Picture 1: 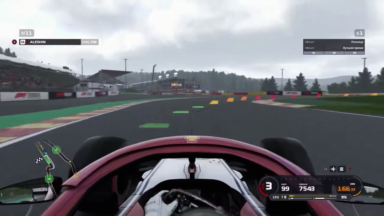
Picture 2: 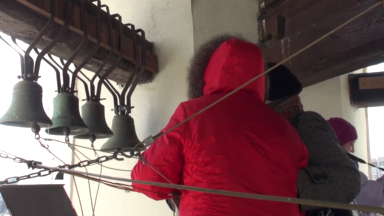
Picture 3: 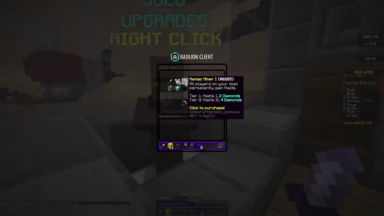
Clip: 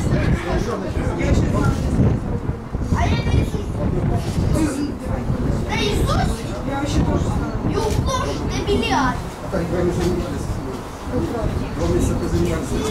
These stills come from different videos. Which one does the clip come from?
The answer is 2